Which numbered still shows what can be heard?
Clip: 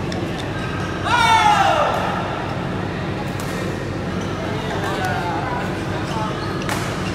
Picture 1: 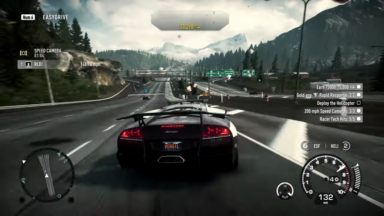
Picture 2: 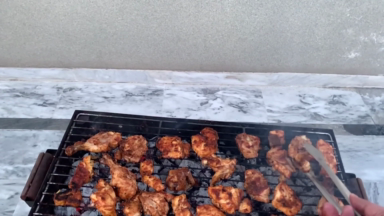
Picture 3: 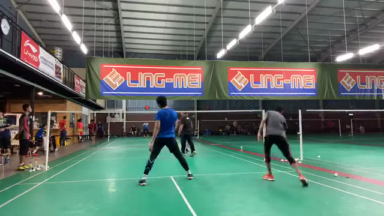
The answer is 3